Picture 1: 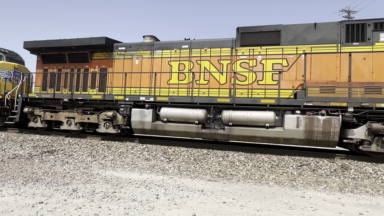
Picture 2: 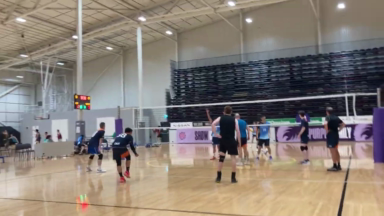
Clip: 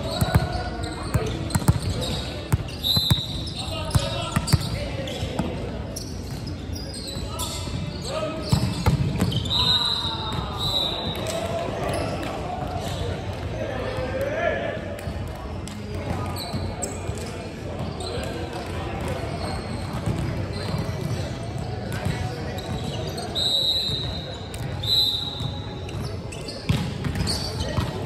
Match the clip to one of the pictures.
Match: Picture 2